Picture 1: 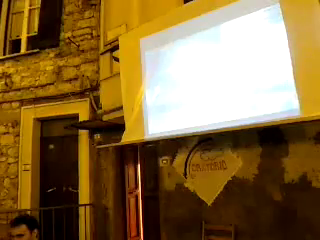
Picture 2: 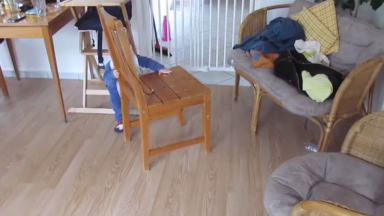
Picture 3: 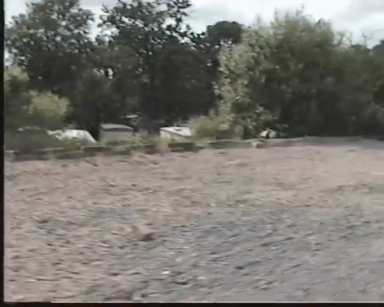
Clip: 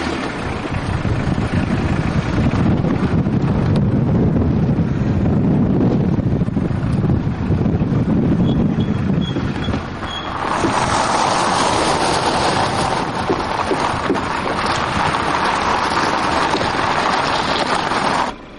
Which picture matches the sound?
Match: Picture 3